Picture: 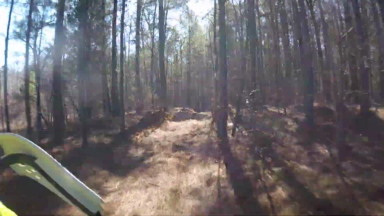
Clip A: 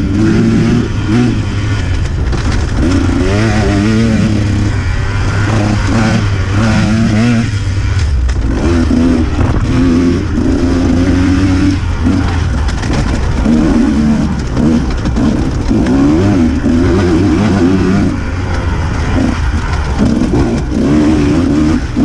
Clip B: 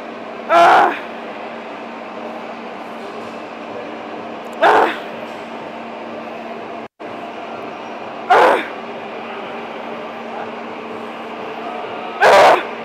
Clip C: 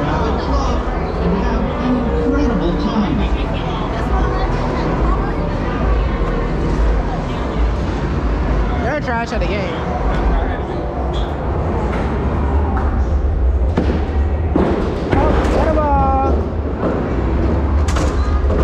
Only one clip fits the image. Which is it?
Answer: A